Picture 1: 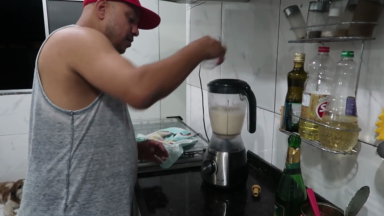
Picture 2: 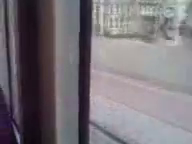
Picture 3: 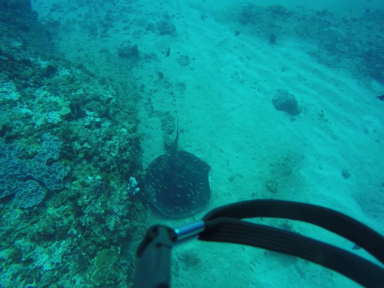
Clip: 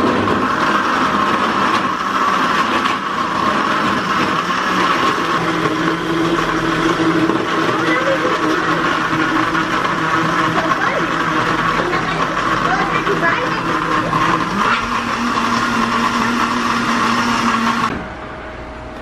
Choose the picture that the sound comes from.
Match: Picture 1